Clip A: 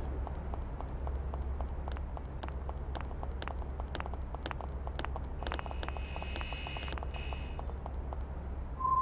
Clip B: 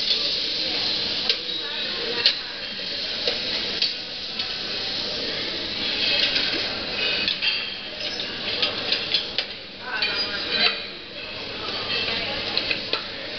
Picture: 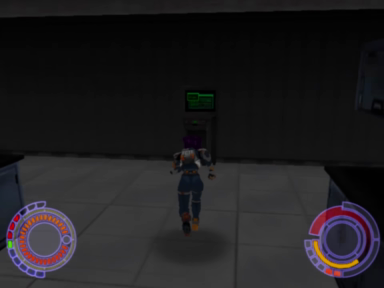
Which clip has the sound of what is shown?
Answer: A